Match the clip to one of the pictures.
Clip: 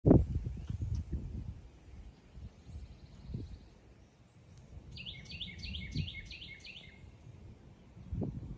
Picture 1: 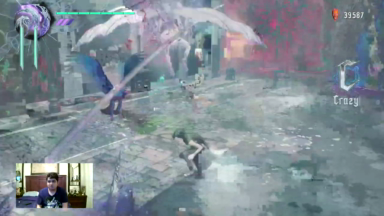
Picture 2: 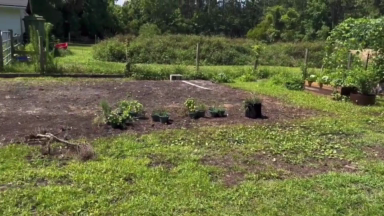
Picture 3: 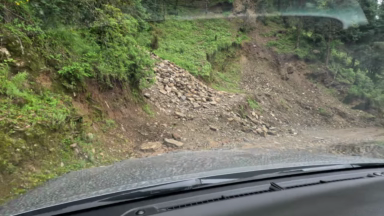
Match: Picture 2